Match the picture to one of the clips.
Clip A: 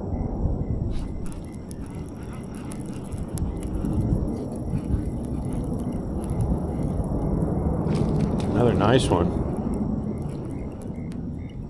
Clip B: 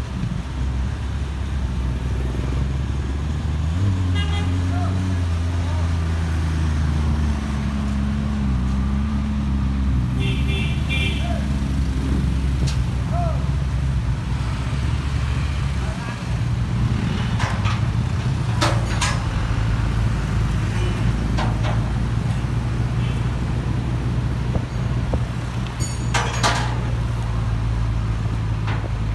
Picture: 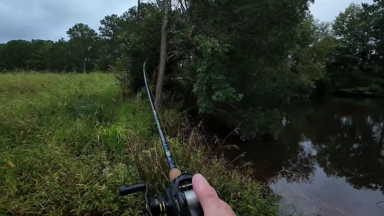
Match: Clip A